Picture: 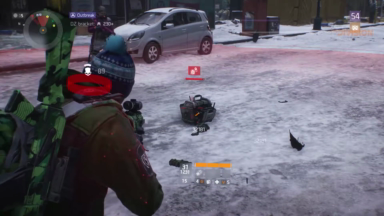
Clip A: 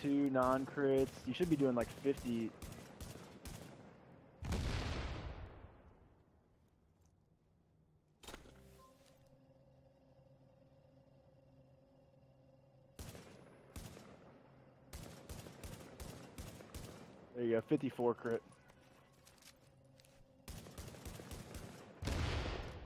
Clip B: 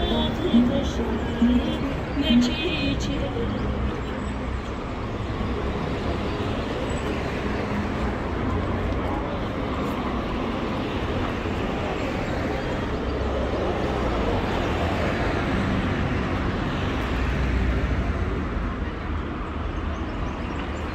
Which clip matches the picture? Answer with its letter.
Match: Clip A